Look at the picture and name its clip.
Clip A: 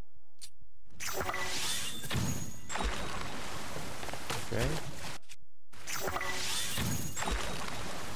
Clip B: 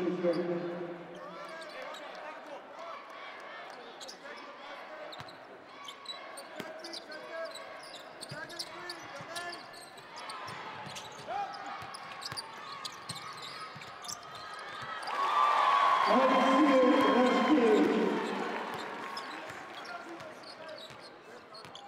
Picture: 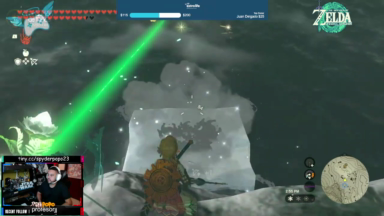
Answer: A